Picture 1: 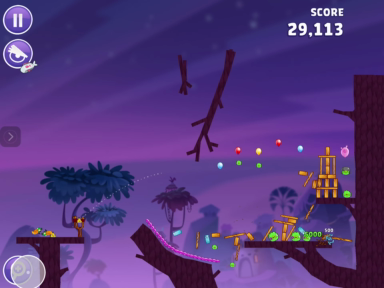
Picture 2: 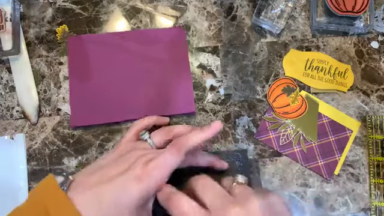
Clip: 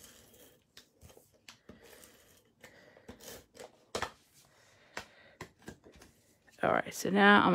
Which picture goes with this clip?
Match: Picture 2